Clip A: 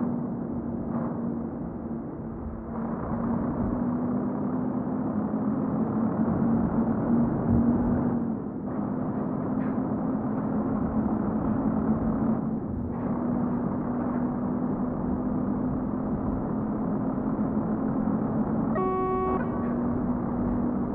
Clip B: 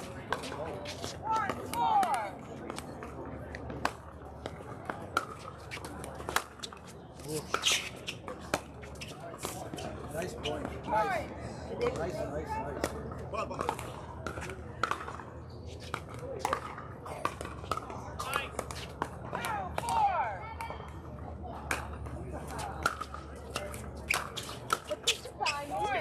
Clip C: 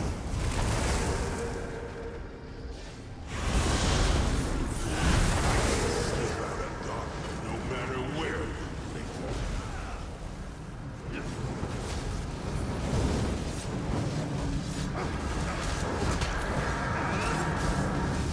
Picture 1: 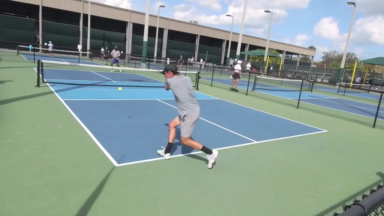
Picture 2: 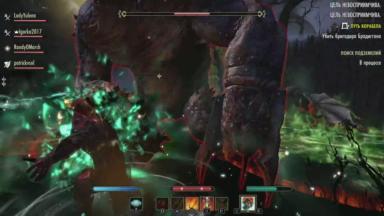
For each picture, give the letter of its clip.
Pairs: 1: B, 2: C